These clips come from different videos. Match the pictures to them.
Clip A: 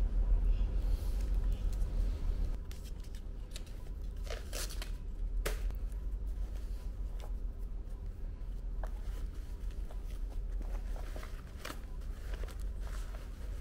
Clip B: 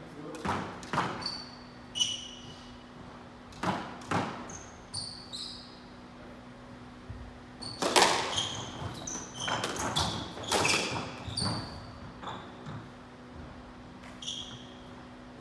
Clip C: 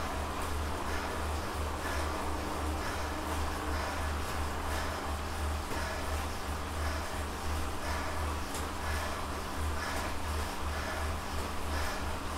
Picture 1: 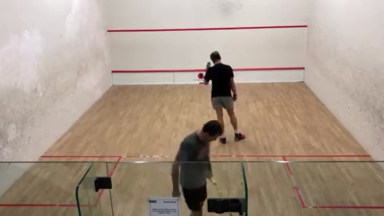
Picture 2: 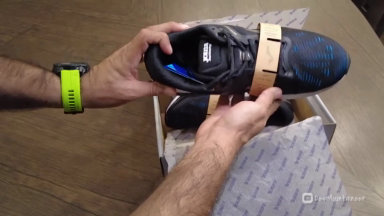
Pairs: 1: B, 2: A